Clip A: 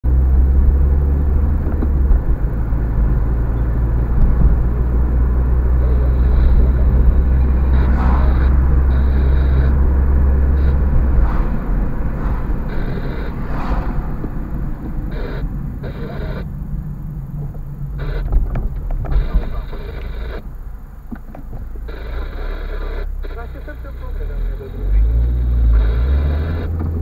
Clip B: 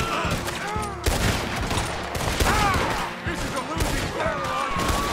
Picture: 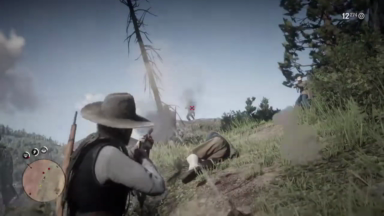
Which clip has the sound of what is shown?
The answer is B